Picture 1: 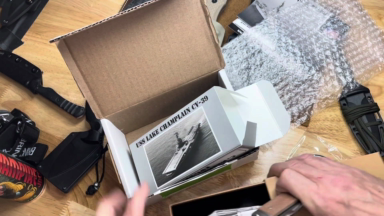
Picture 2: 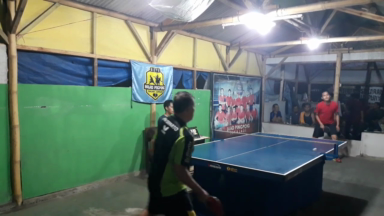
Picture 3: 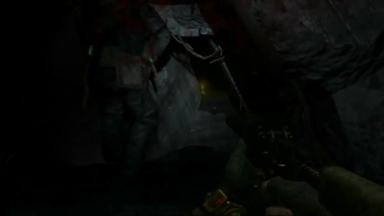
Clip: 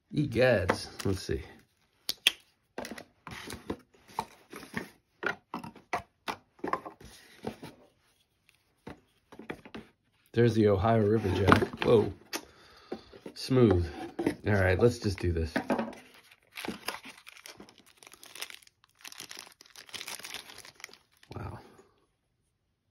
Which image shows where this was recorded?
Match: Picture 1